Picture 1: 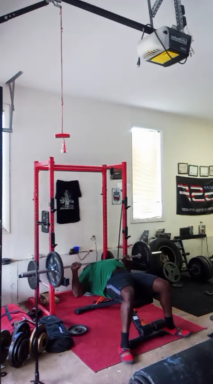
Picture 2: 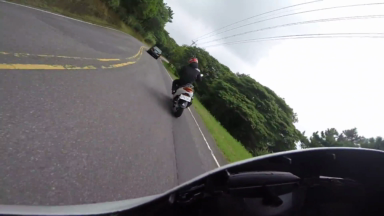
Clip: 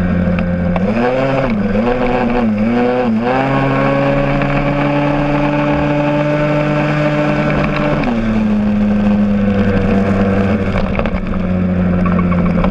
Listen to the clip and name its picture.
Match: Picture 2